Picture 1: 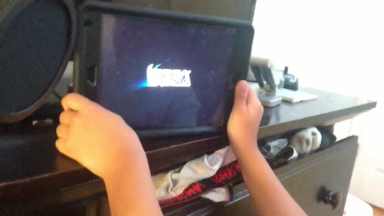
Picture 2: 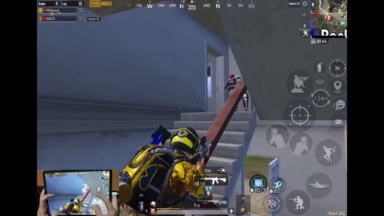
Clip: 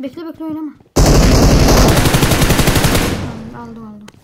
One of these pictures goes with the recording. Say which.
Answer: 2